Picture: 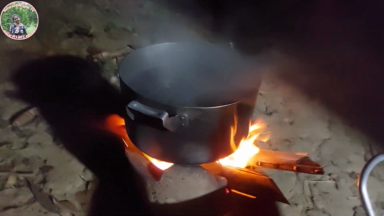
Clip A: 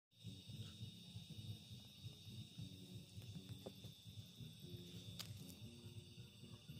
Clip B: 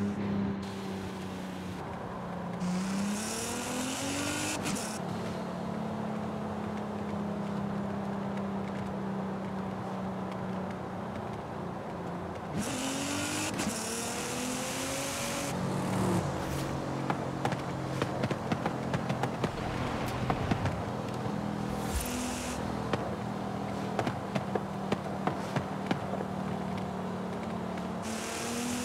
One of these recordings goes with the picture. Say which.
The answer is A